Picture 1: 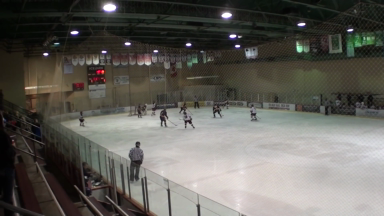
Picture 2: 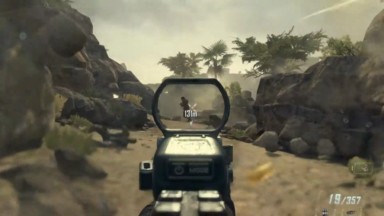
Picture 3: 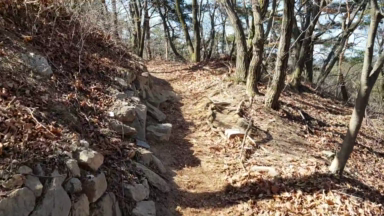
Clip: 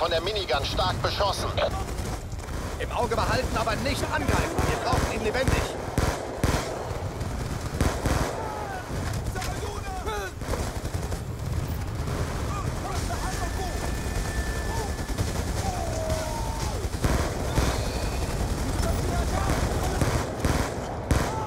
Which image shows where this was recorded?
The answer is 2